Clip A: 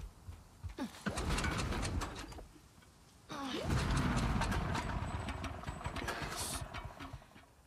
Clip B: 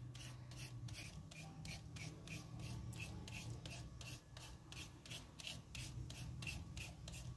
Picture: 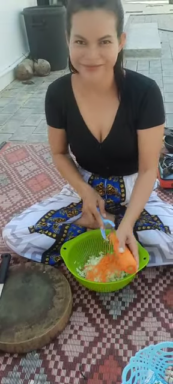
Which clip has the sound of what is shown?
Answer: B